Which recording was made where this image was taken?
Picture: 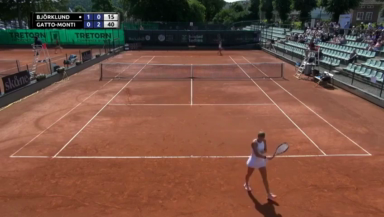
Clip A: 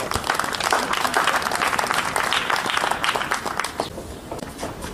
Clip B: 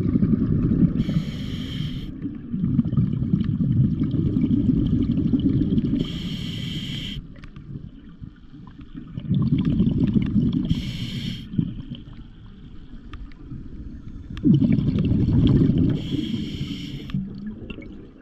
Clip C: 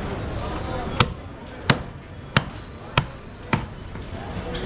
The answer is A